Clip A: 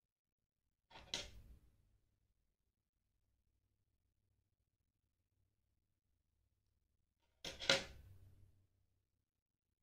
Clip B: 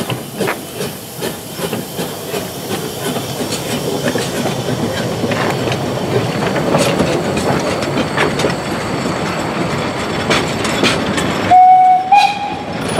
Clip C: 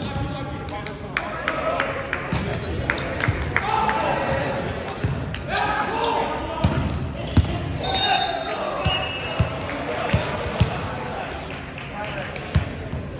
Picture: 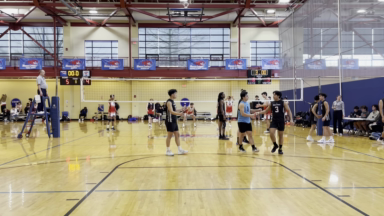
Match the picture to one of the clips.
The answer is C